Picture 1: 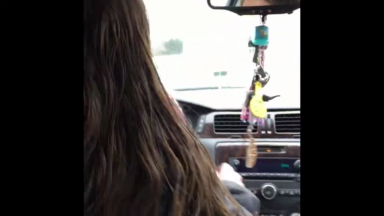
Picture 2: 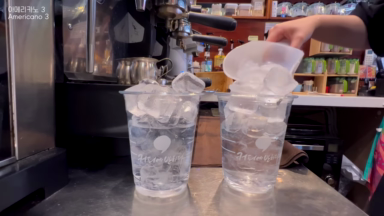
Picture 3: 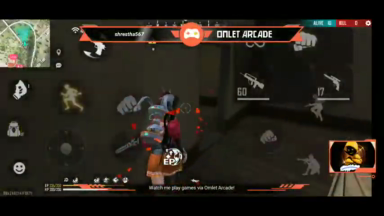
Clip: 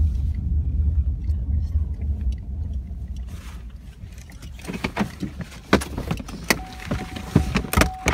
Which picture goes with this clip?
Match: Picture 1